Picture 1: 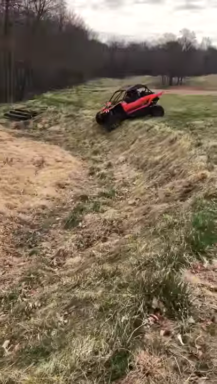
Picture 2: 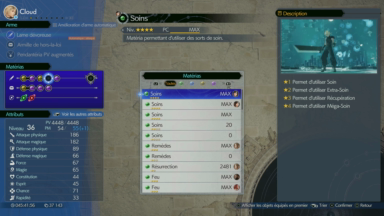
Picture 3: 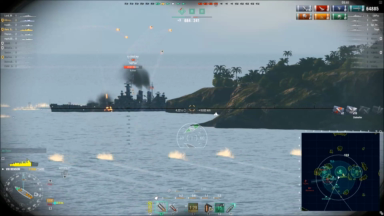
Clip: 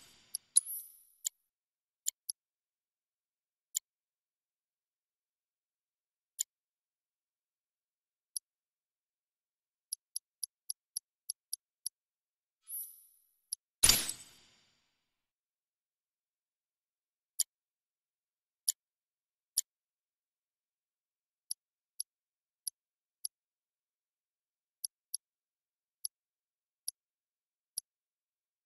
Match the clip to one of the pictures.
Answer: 2